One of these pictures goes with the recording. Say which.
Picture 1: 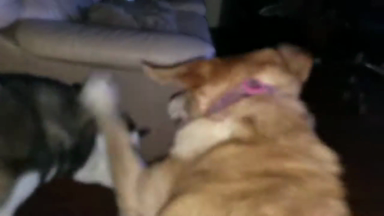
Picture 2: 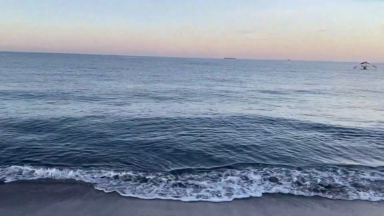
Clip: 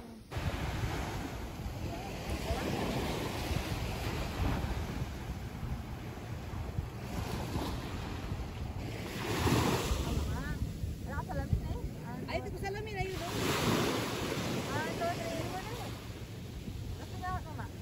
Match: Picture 2